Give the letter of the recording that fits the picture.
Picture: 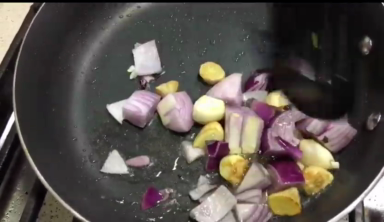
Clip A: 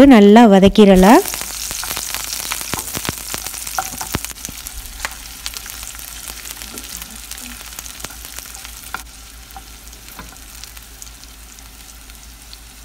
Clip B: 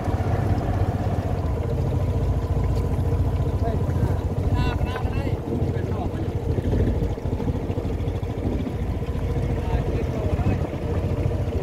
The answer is A